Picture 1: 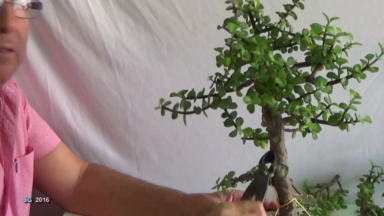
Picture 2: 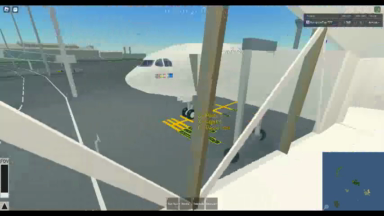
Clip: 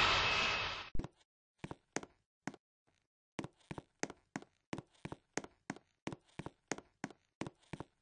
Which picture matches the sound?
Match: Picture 2